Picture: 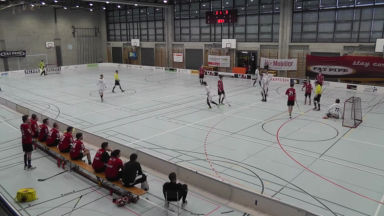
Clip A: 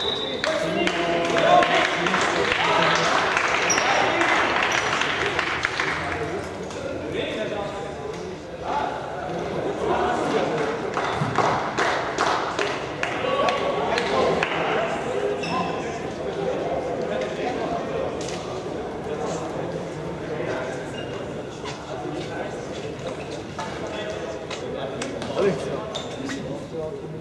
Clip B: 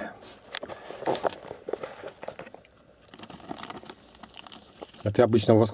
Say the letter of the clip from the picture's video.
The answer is A